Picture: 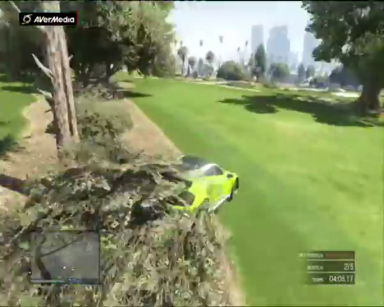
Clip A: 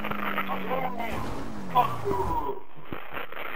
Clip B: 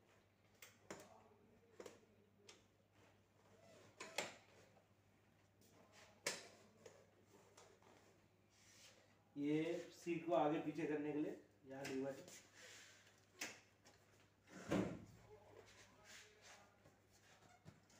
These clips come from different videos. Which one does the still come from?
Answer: A